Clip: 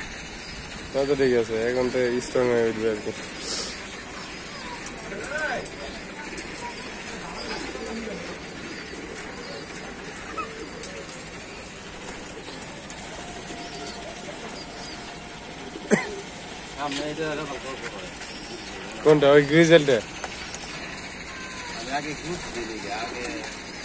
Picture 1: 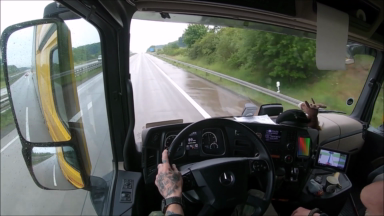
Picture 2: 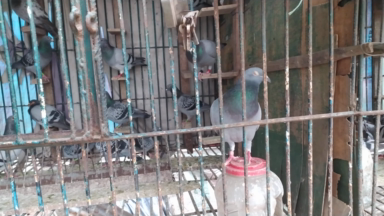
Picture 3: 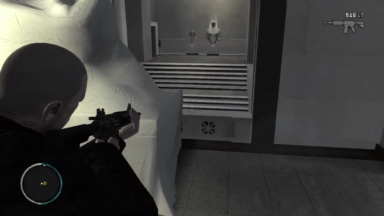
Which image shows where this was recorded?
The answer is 2